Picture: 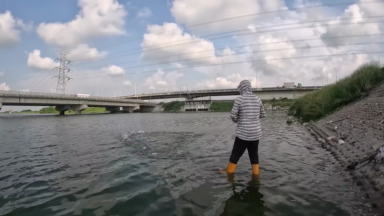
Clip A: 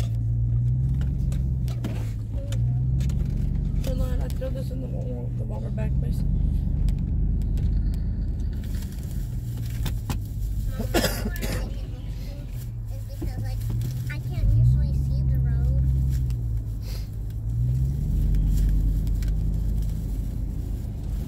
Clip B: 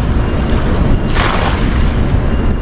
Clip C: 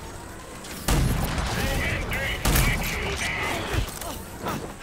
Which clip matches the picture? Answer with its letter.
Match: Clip B